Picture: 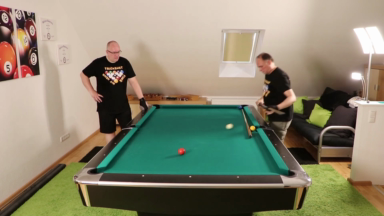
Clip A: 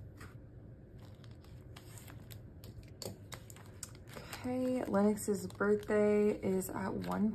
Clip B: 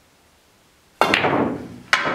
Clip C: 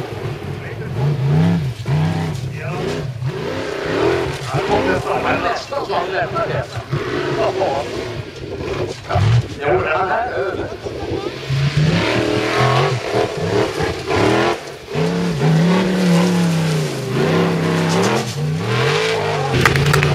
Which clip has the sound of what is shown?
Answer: B